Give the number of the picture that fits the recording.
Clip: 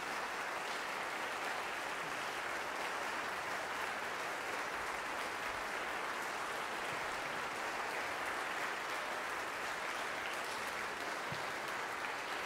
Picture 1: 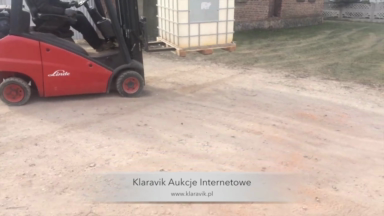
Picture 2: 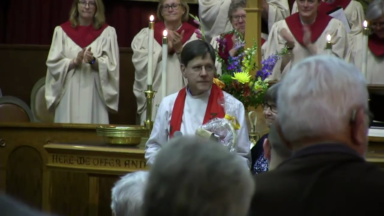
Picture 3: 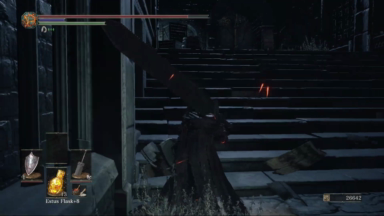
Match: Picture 2